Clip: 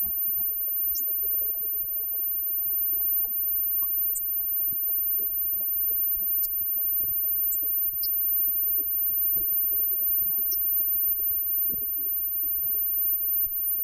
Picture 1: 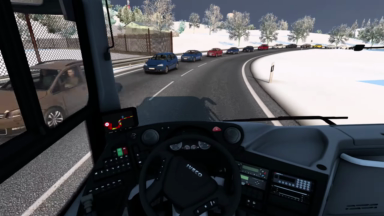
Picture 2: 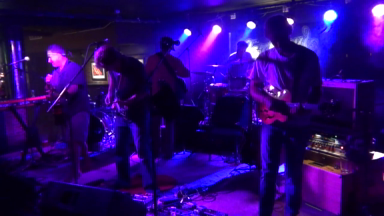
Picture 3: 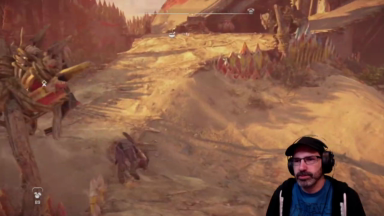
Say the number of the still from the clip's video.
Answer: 2